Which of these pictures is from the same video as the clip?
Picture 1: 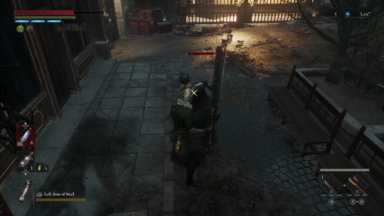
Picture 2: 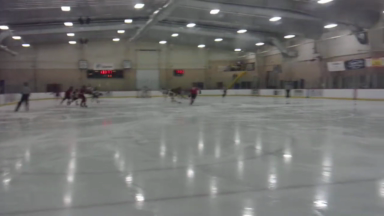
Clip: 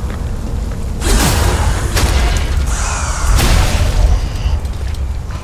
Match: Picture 1